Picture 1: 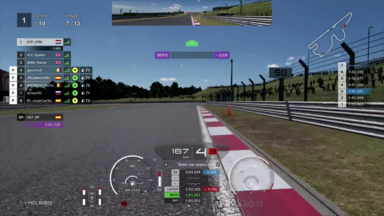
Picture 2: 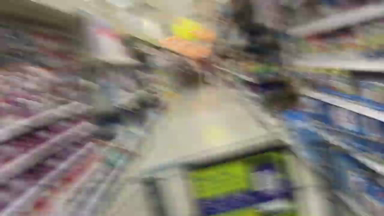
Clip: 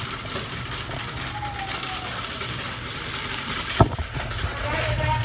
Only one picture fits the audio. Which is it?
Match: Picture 2